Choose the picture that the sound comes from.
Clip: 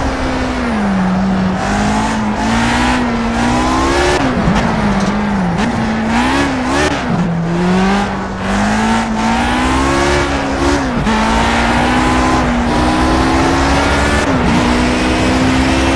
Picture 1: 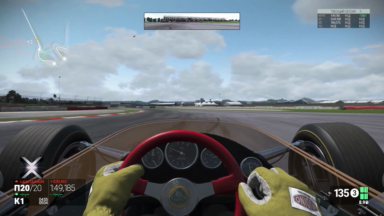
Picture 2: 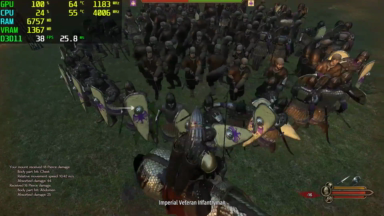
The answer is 1